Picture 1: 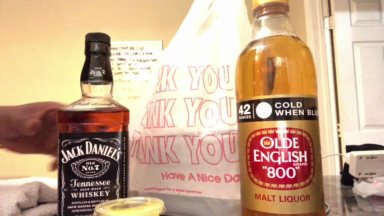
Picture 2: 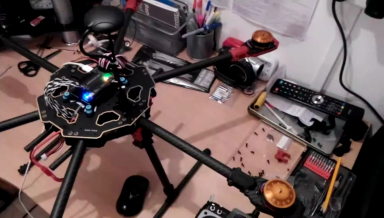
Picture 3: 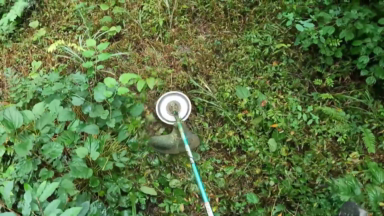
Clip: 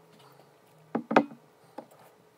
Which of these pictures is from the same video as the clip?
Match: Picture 1